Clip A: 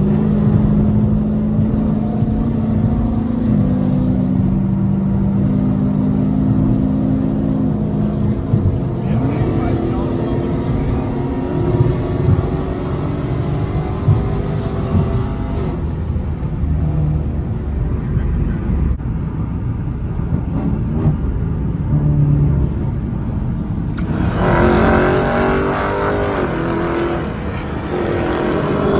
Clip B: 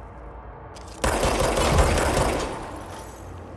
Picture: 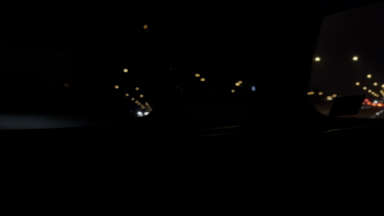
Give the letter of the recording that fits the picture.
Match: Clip A